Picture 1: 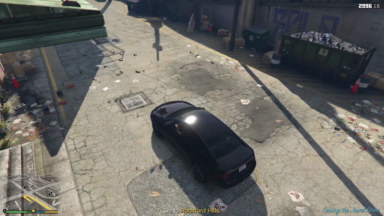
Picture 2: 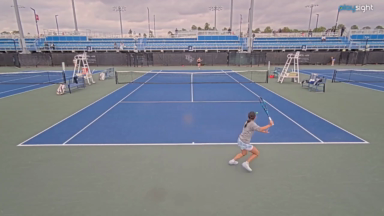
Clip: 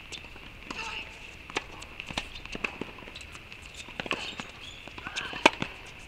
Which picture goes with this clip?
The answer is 2